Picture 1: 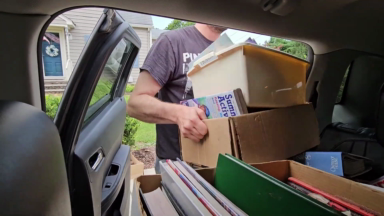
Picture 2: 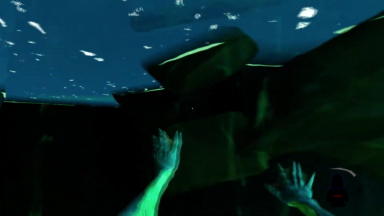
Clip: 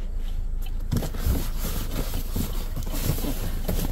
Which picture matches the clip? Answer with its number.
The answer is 1